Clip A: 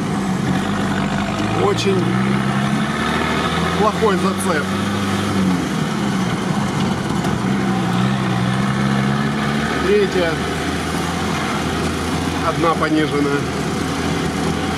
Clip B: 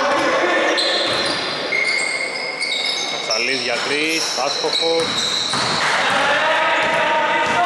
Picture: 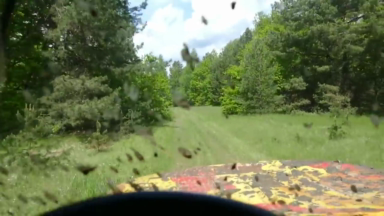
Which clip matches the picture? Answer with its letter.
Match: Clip A